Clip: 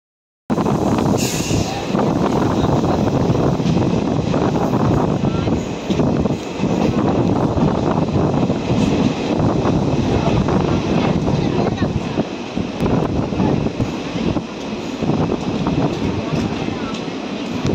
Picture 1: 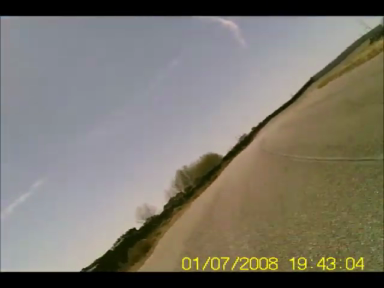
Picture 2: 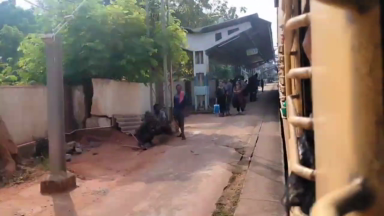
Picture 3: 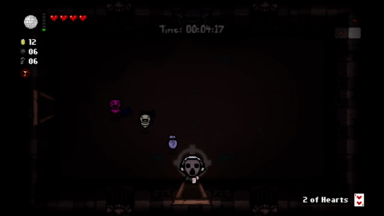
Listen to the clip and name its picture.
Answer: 2